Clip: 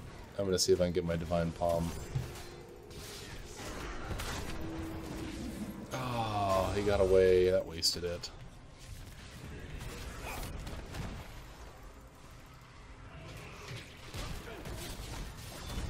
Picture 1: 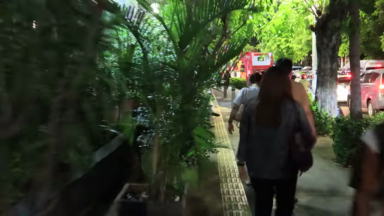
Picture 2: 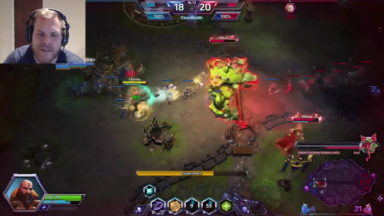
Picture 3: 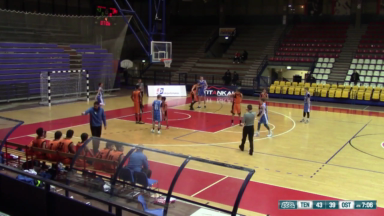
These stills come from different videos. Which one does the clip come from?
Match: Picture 2